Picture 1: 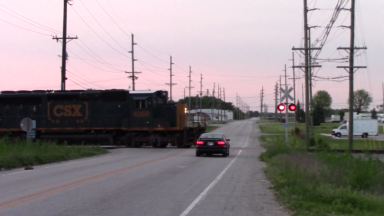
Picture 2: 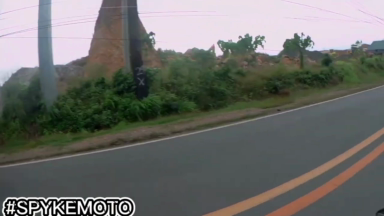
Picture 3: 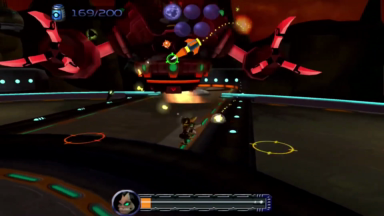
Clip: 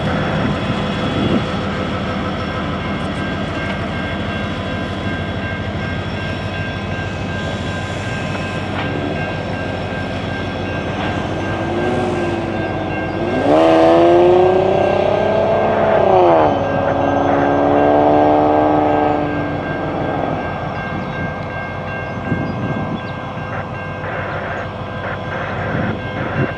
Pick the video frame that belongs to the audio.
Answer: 1